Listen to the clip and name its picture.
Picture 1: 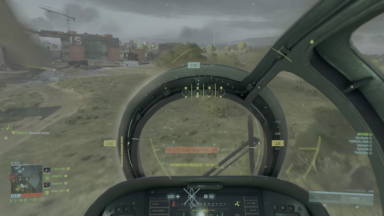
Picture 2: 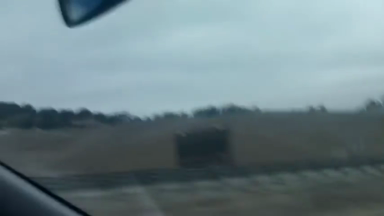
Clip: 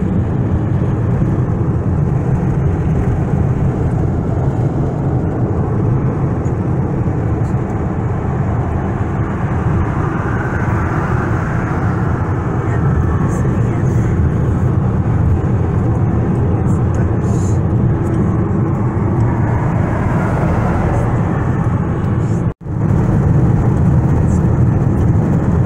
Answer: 2